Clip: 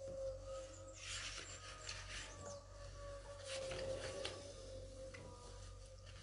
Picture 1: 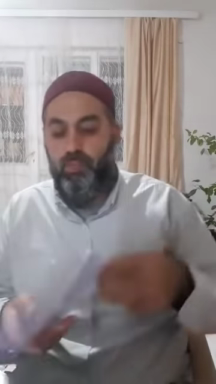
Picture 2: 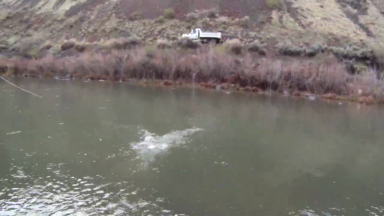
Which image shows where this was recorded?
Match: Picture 1